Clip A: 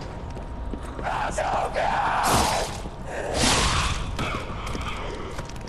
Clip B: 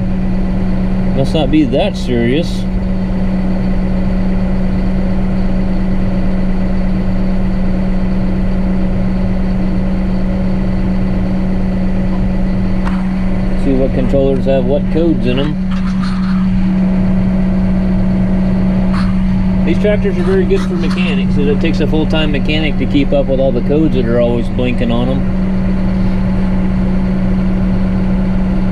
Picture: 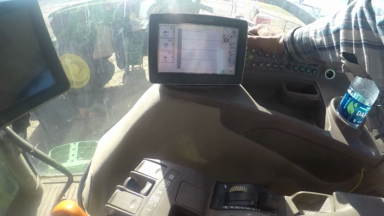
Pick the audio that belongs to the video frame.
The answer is B